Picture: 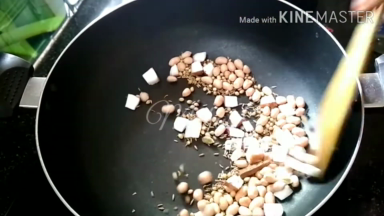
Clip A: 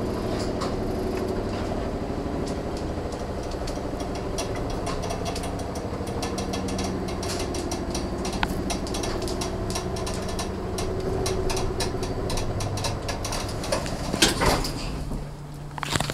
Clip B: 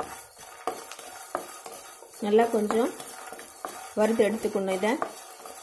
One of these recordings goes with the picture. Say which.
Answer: B